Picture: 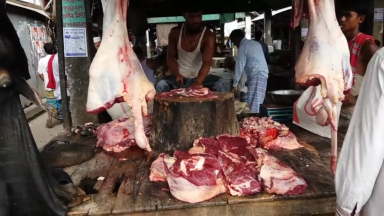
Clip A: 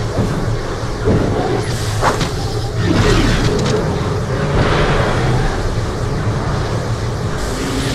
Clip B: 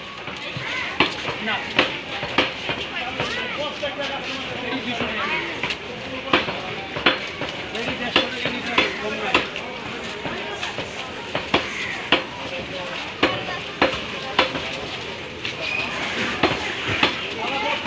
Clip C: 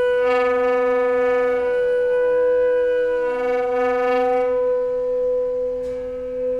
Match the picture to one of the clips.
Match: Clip B